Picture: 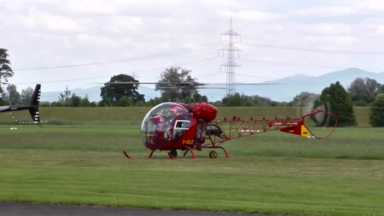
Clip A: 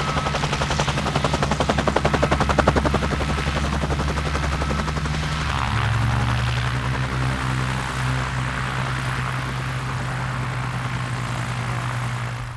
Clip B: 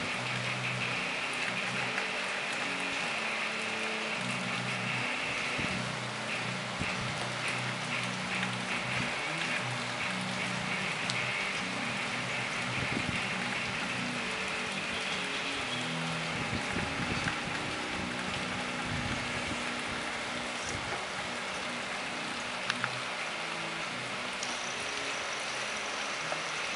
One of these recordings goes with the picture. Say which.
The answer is A